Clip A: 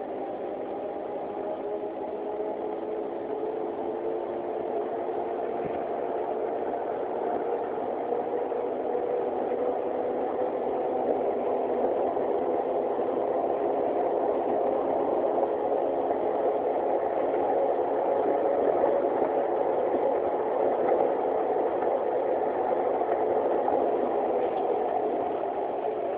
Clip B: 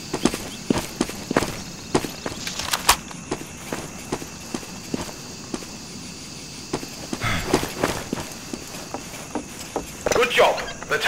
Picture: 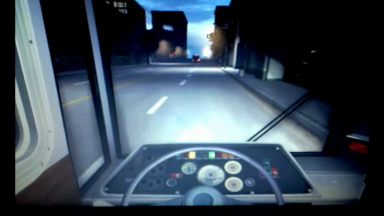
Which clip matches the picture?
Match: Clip A